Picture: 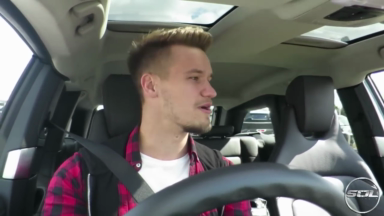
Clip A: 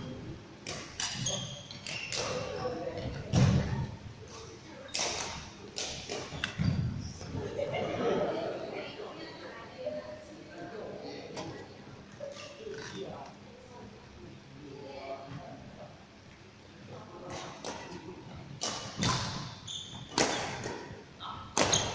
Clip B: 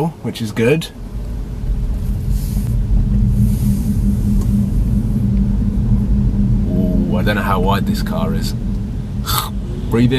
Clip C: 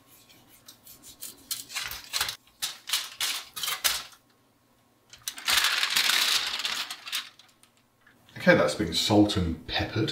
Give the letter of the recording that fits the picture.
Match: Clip B